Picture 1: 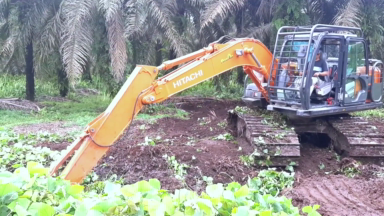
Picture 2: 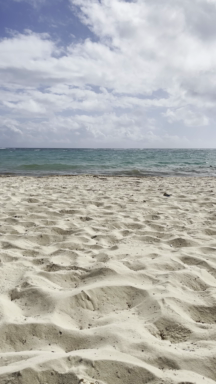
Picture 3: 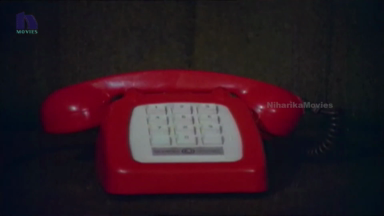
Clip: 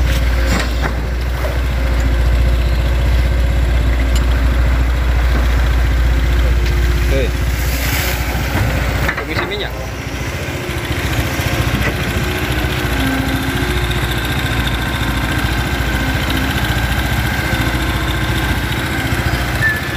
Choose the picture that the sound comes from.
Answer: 1